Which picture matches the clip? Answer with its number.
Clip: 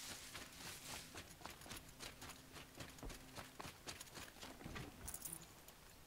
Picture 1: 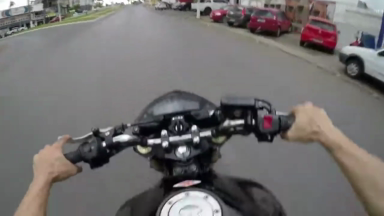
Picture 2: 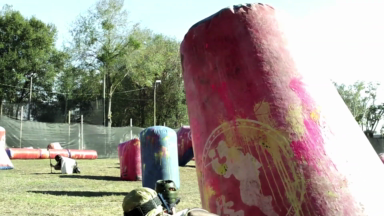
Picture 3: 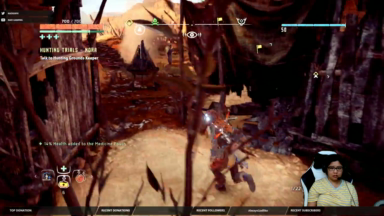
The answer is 3